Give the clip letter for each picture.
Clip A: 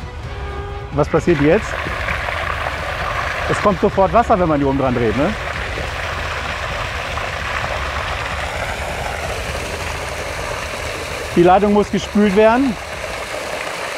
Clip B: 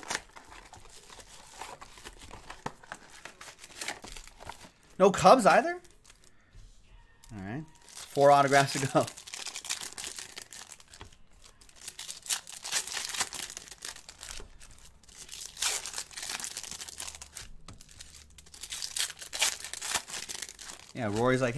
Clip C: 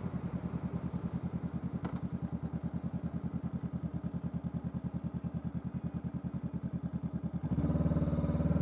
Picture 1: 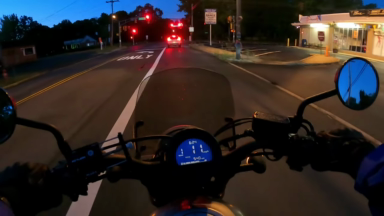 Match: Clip C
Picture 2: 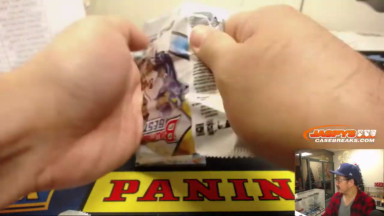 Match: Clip B